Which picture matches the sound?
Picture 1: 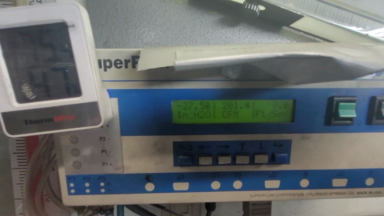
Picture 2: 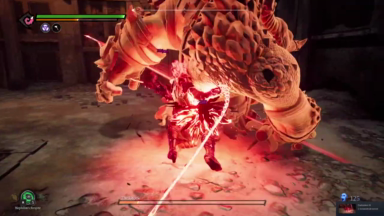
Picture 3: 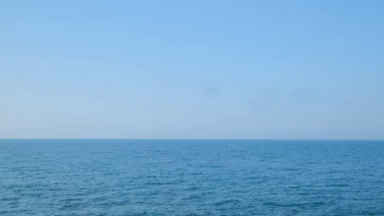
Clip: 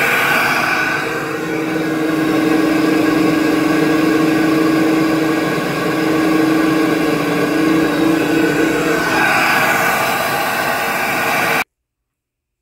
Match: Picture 1